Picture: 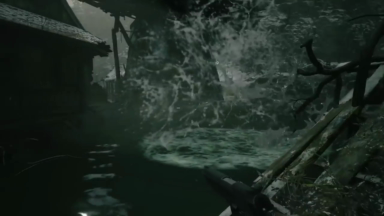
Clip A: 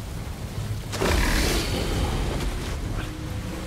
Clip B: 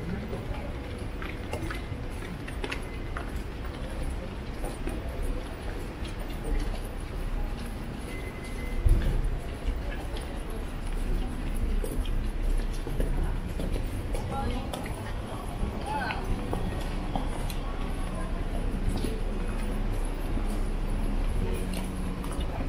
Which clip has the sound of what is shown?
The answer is A